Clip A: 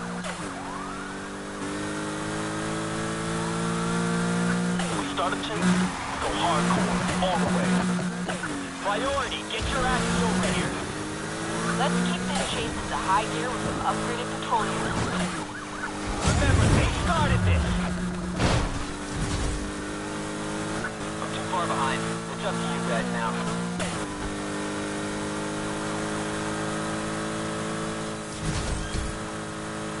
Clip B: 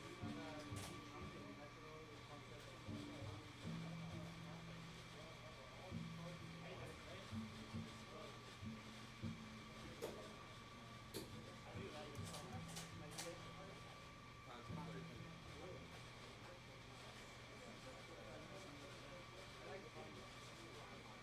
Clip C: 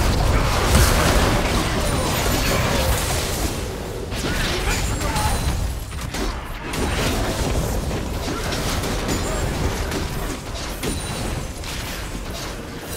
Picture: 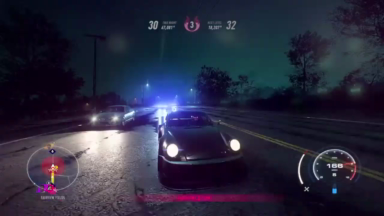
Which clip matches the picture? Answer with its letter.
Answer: A